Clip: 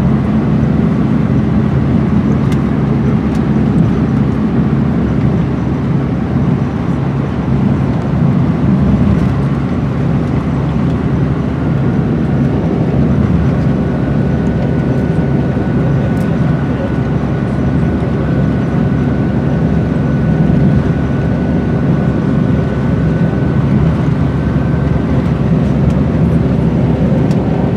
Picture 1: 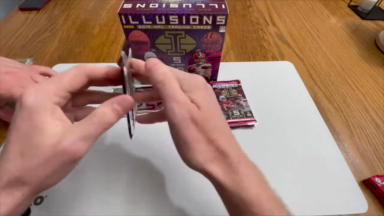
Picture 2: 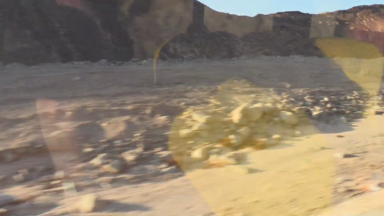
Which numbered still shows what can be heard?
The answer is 2